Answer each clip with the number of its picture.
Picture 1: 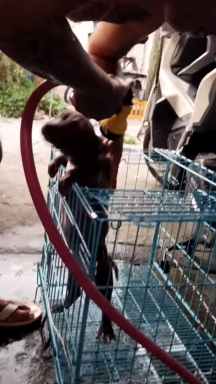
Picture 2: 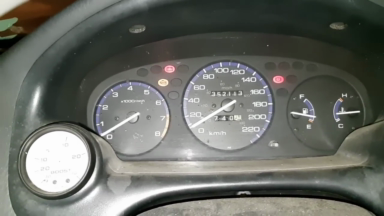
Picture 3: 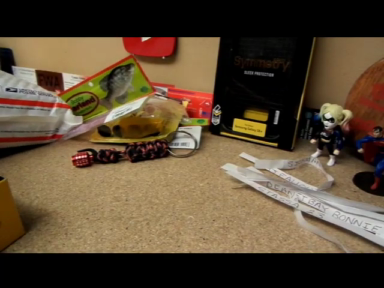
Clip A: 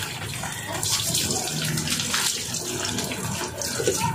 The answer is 1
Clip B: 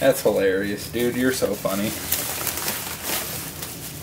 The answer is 3